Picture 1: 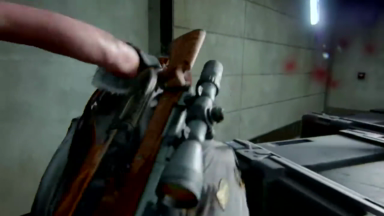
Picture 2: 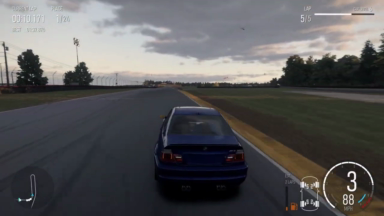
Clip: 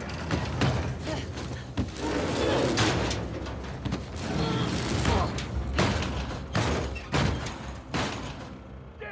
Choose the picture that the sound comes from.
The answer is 1